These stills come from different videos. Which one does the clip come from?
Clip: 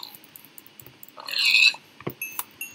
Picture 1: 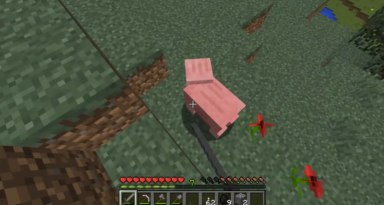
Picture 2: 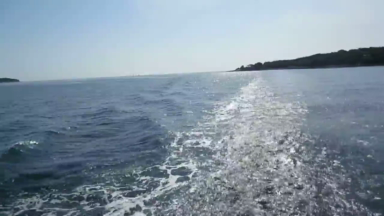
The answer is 1